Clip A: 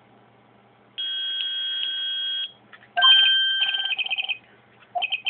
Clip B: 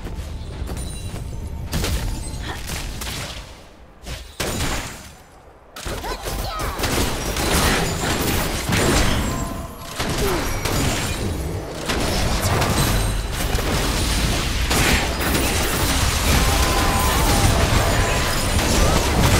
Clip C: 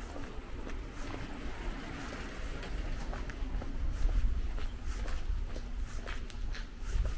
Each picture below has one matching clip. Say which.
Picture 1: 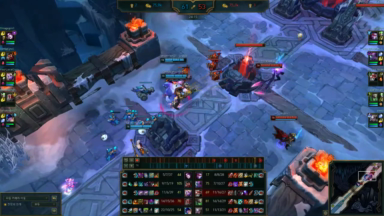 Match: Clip B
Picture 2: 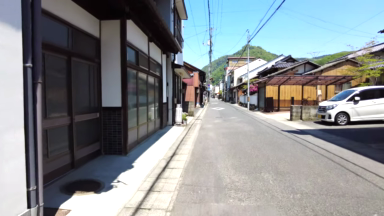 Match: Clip C